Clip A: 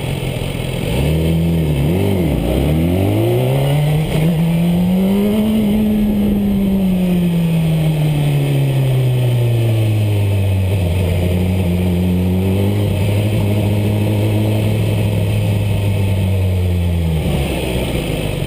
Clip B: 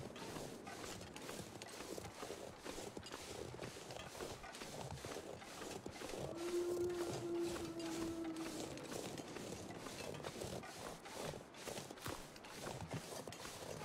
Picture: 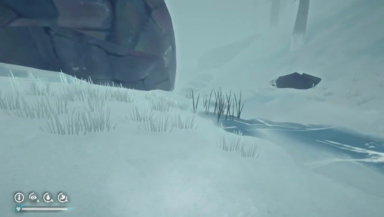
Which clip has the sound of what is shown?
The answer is B